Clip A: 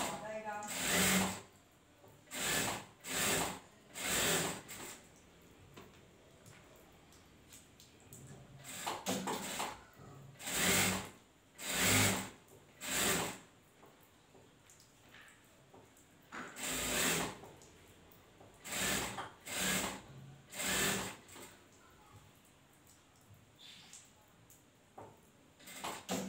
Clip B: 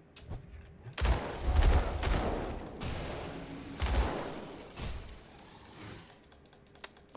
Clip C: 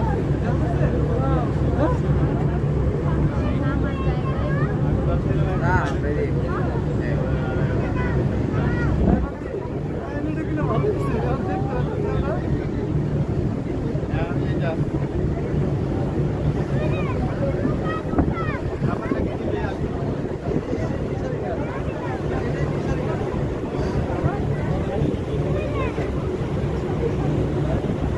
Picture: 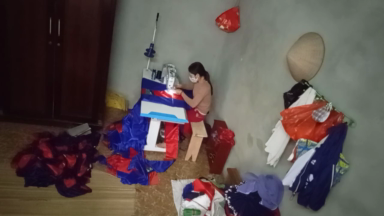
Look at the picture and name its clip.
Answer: A